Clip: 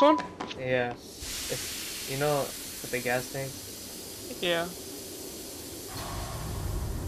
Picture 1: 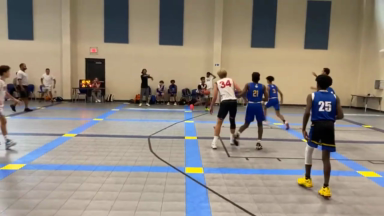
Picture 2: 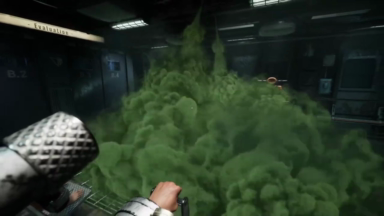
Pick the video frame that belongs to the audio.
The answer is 2